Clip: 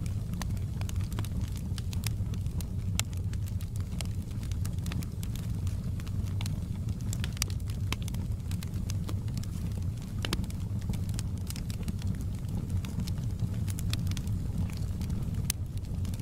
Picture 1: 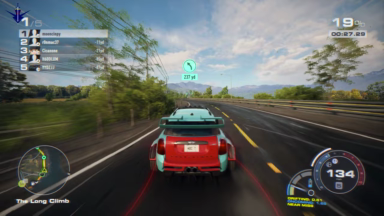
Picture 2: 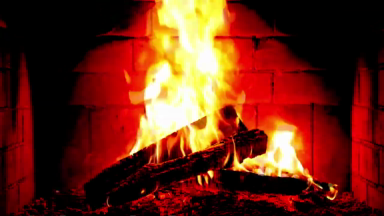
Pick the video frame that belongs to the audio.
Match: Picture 2